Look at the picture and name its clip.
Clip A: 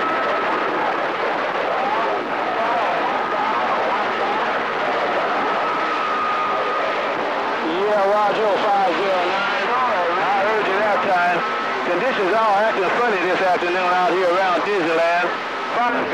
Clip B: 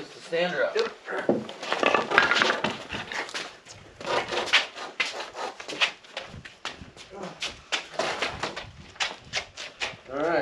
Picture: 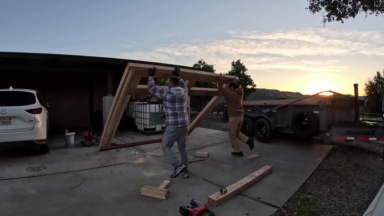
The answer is B